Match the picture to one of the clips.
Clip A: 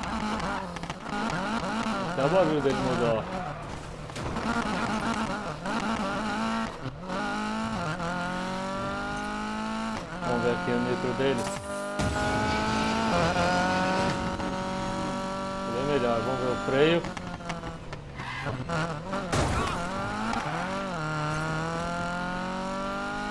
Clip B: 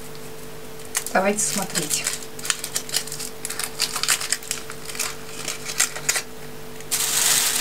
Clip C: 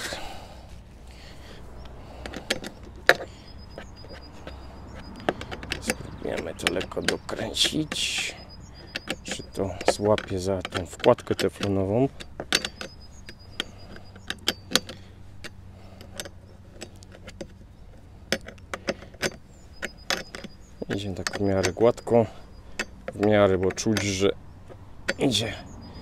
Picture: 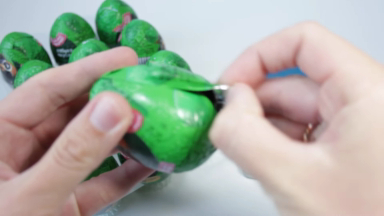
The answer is B